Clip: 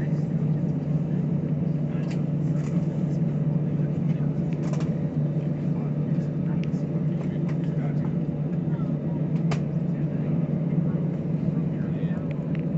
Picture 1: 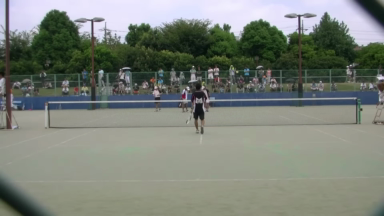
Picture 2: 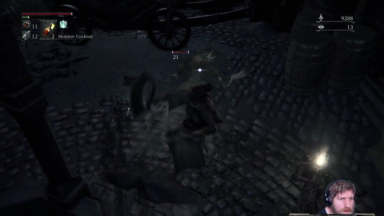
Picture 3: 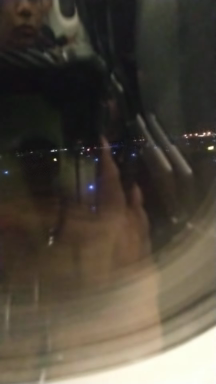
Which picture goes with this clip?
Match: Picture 3